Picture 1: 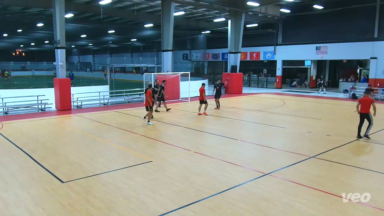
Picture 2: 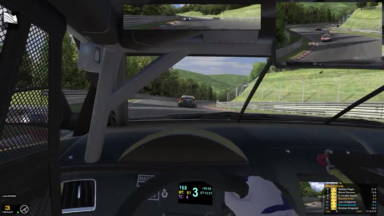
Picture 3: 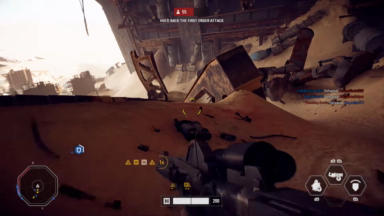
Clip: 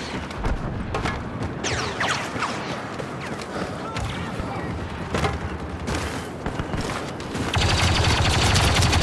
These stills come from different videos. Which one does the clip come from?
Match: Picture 3